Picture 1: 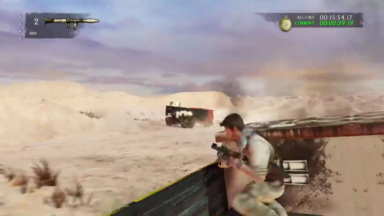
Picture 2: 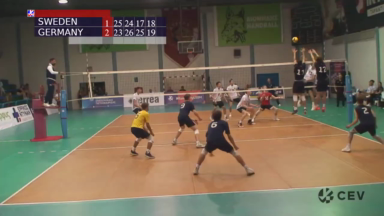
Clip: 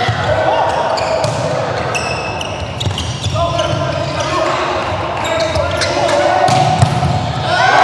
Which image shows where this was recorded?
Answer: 2